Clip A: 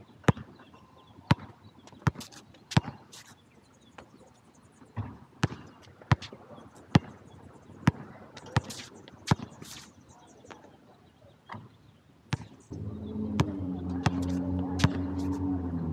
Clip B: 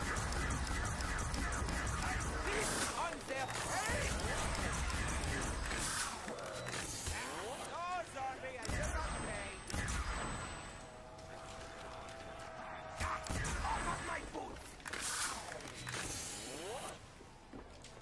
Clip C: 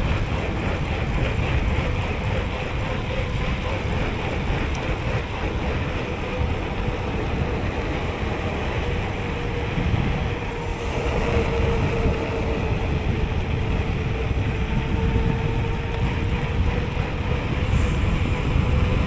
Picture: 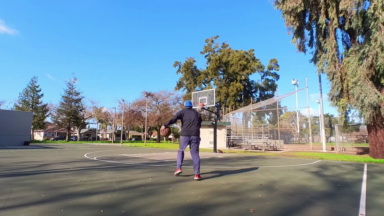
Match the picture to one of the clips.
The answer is A